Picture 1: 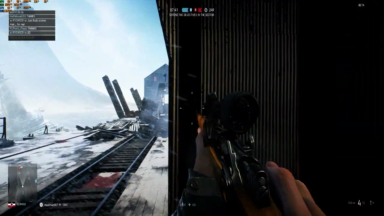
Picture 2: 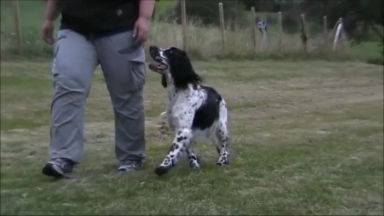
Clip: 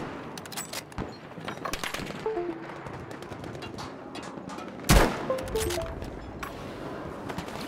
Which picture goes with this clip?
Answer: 1